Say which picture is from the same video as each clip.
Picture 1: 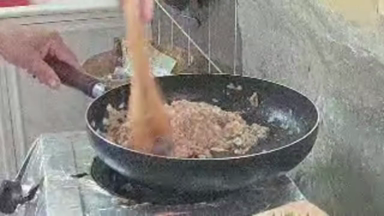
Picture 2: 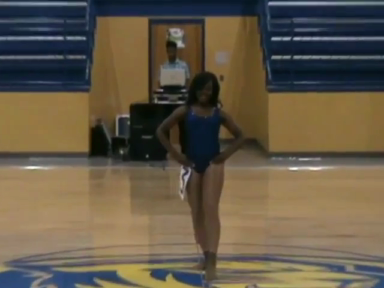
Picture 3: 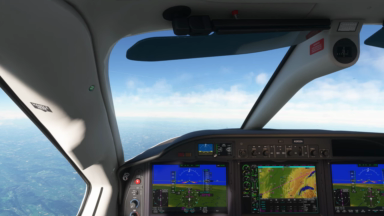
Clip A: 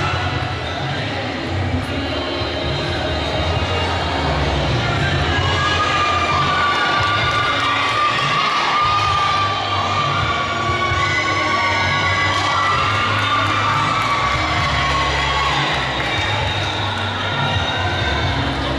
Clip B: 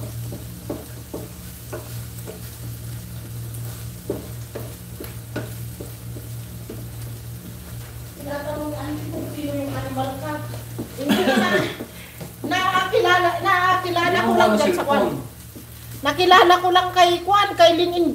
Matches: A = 2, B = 1